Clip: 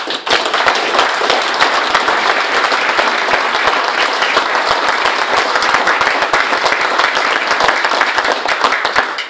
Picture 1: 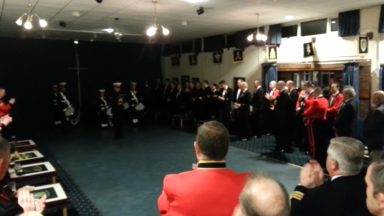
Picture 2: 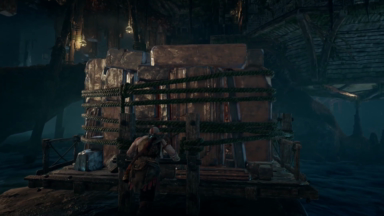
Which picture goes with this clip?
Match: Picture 1